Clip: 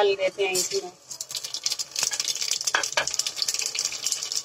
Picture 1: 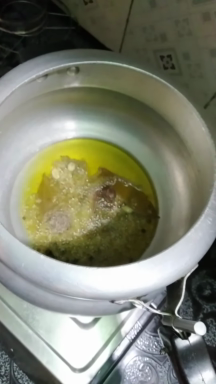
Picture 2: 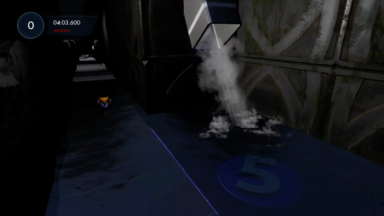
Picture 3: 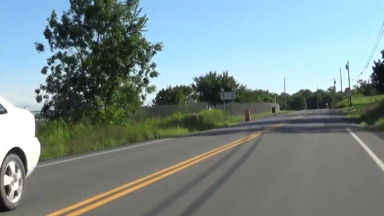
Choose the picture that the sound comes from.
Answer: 1